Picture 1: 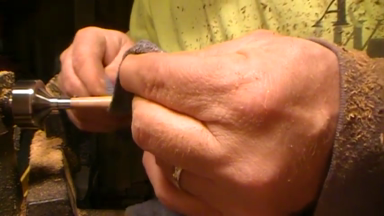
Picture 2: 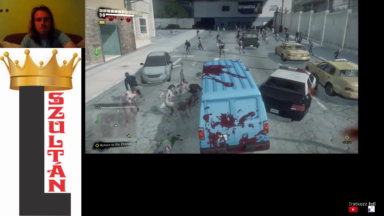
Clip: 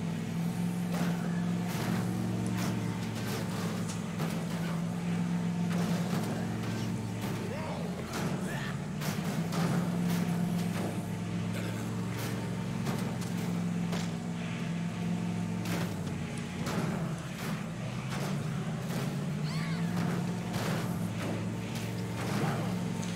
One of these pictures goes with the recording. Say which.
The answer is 2